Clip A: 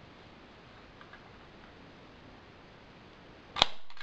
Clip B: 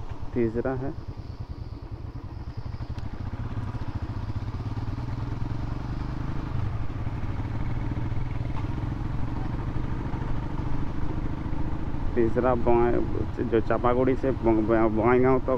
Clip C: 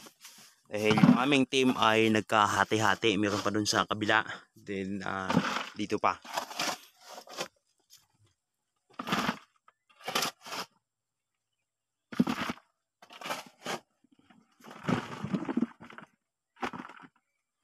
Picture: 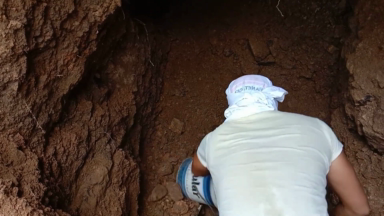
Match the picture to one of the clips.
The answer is C